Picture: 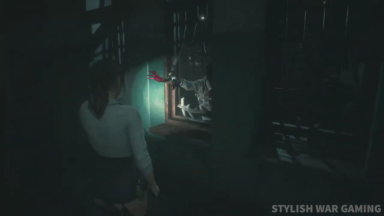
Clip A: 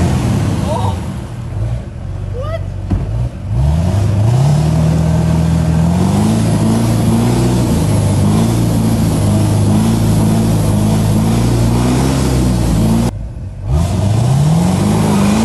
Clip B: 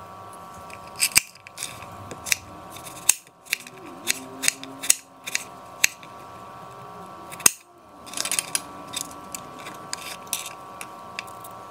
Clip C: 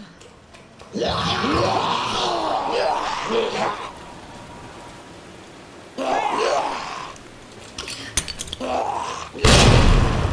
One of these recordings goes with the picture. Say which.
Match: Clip C